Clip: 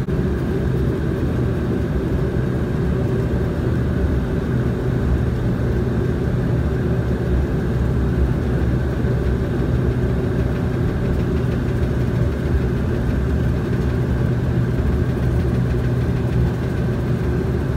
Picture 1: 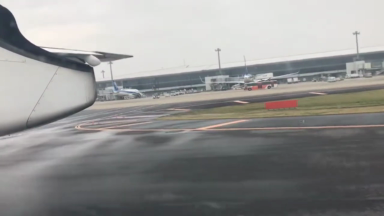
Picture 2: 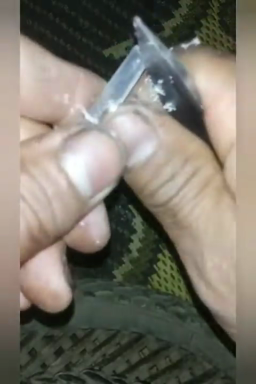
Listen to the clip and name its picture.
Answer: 1